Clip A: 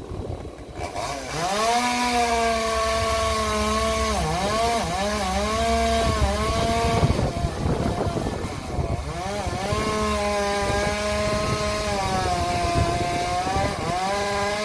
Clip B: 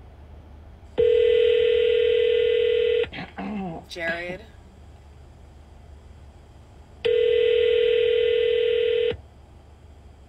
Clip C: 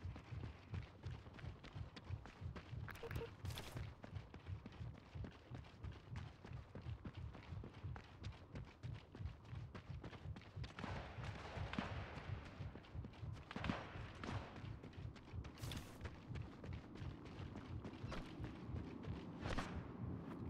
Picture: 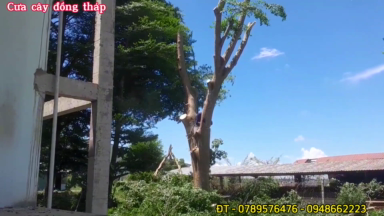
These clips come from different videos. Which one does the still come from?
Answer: A